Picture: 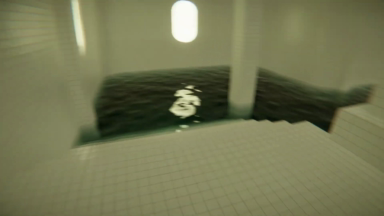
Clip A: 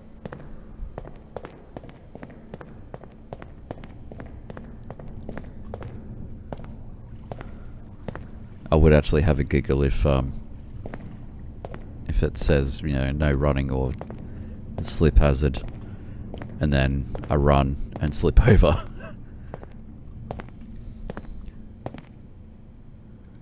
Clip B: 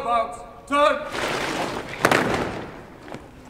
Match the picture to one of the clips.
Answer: A